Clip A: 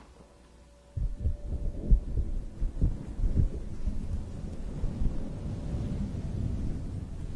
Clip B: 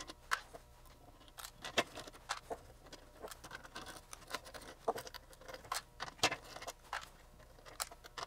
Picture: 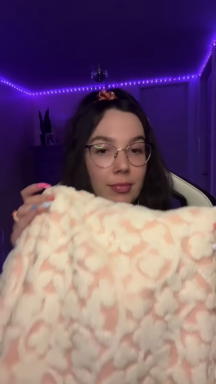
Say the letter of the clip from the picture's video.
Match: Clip A